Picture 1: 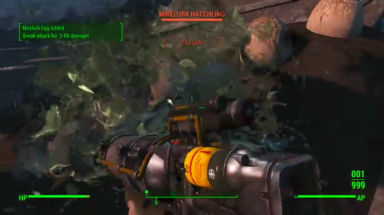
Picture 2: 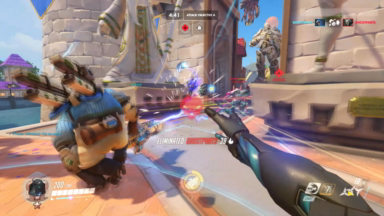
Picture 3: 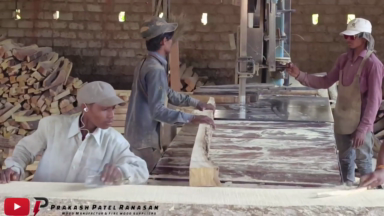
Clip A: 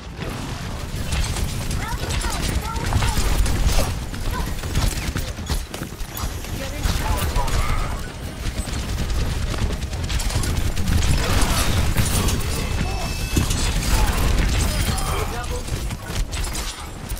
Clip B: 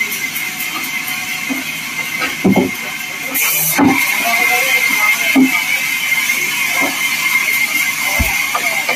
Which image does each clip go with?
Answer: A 2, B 3